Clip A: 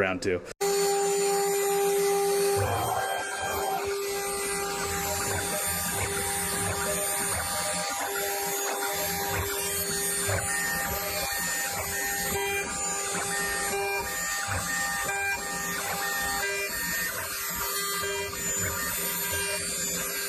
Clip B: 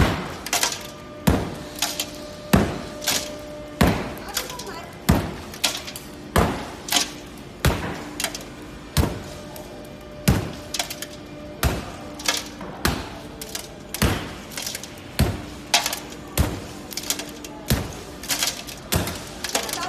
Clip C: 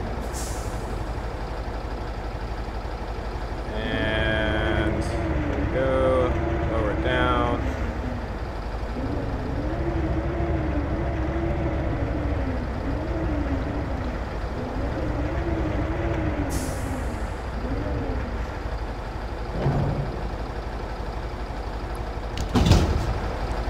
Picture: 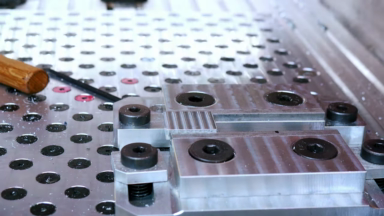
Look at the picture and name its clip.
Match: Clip A